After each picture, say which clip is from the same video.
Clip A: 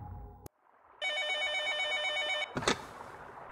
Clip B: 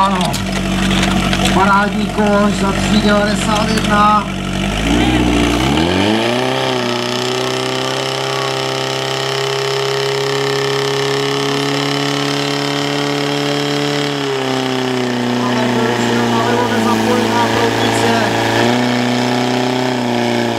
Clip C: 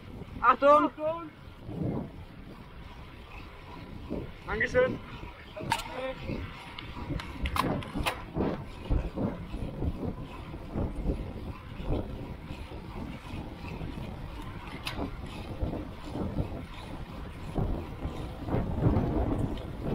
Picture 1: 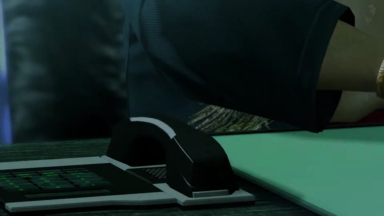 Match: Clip A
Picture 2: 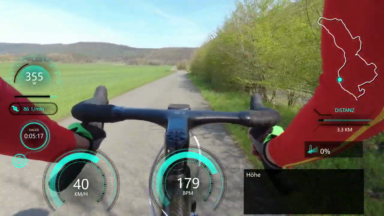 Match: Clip C